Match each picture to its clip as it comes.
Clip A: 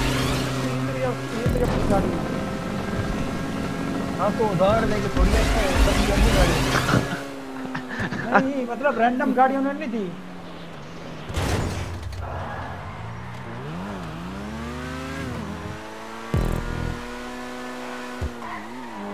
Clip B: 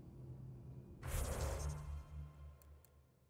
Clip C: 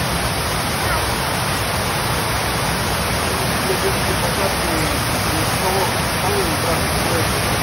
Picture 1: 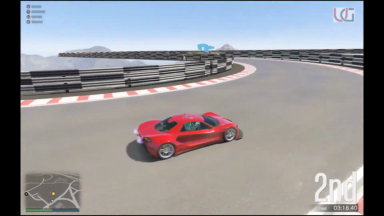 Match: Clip A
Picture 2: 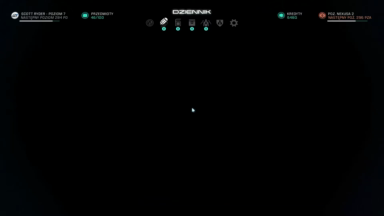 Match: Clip B